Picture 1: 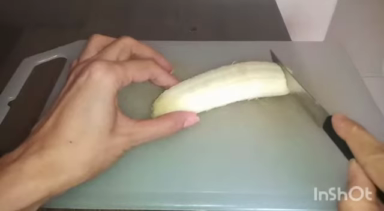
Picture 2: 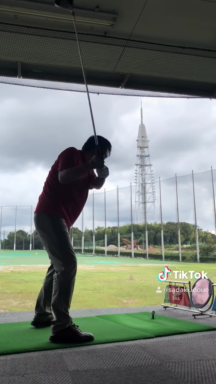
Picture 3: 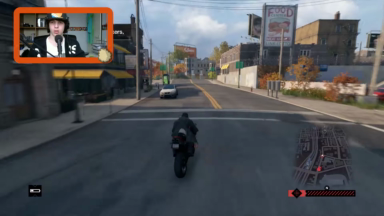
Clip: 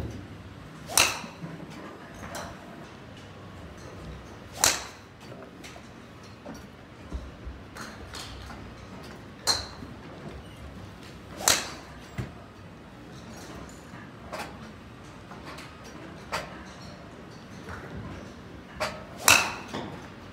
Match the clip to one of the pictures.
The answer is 2